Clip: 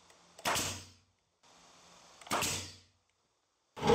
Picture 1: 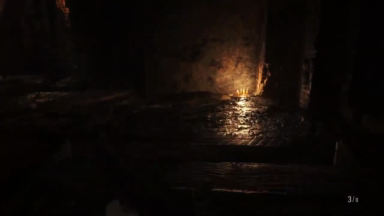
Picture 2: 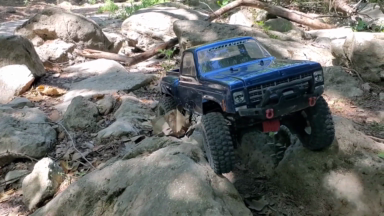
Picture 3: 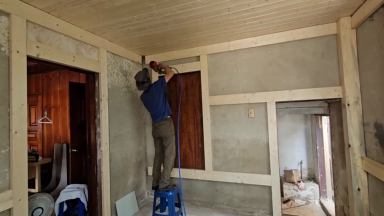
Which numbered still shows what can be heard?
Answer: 3